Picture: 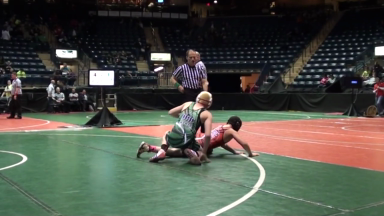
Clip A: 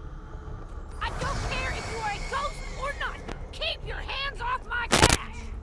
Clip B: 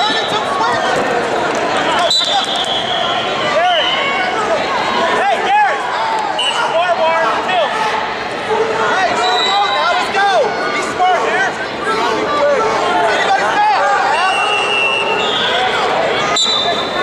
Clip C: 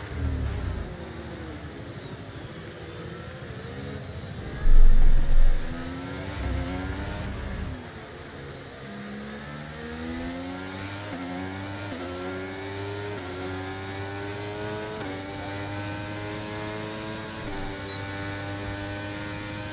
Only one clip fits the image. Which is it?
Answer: B